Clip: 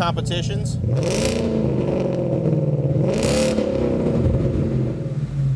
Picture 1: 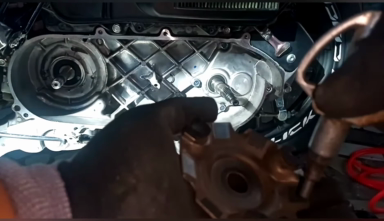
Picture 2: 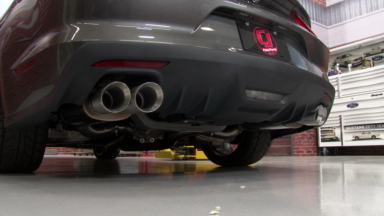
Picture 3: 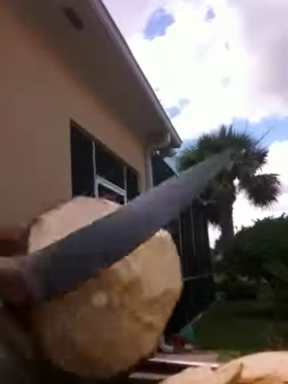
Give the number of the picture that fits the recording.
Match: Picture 2